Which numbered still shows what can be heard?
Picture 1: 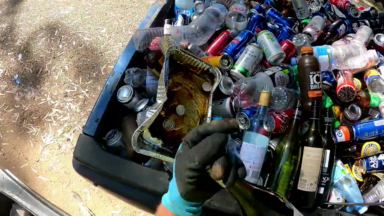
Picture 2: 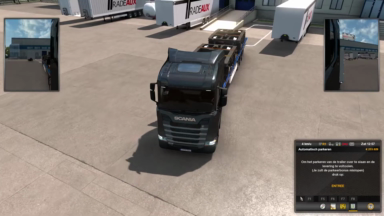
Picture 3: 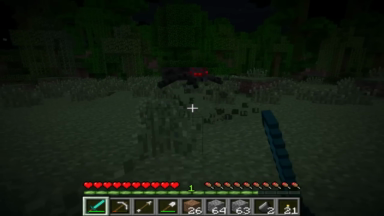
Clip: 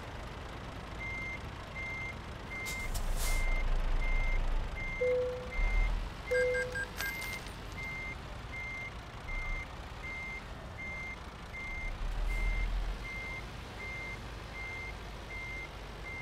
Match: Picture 2